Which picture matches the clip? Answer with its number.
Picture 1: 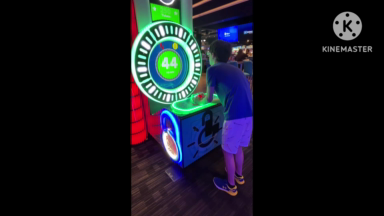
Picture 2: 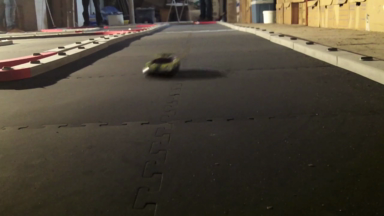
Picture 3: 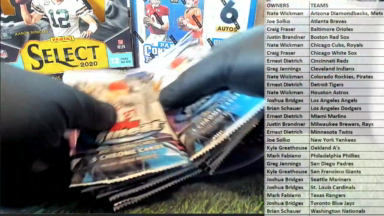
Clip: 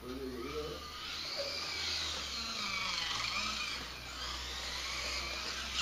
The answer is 2